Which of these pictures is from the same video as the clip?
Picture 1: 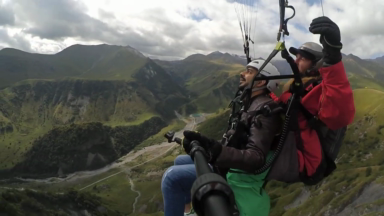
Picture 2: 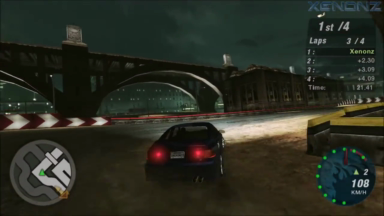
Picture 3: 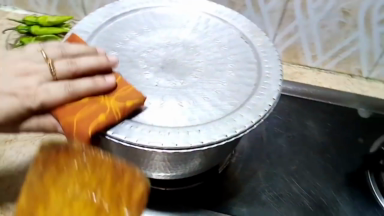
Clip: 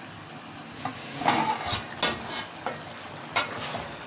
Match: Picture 3